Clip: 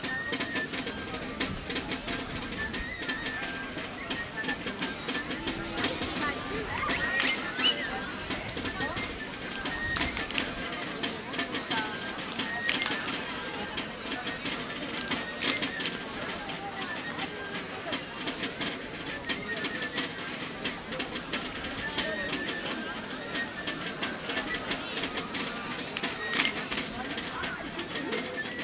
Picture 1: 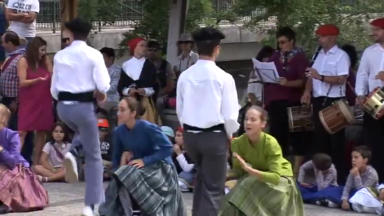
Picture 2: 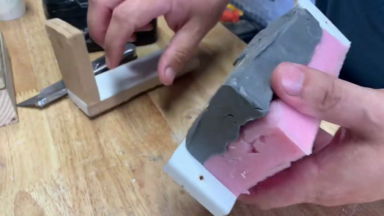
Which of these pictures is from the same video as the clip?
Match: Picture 1